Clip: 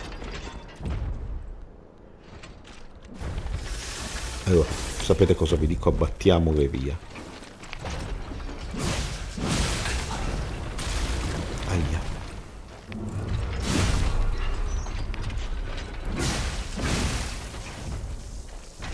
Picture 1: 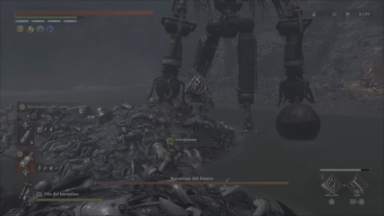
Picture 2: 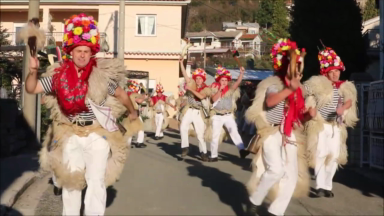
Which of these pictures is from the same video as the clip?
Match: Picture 1